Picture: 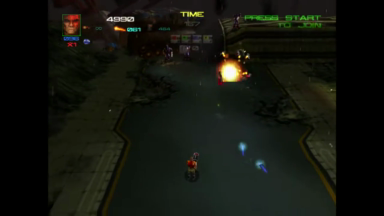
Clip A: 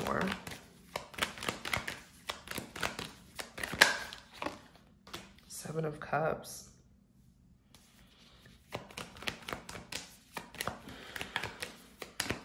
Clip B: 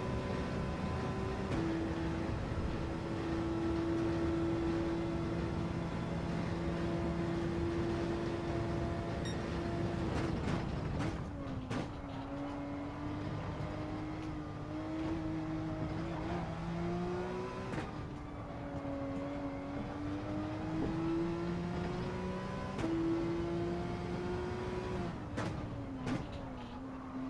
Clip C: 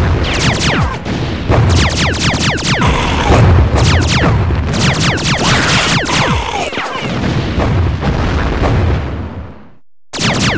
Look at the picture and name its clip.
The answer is C